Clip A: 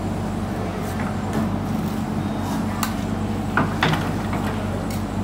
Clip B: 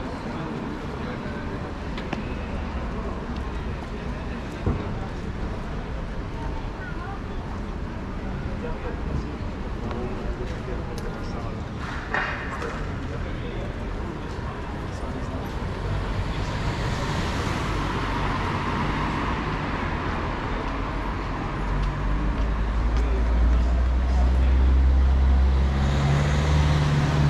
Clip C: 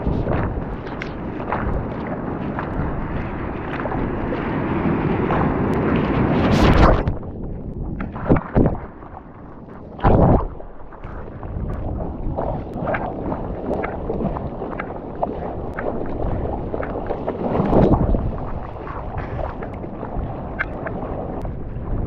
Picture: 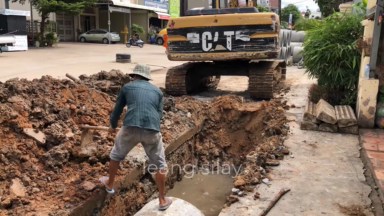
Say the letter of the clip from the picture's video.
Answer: A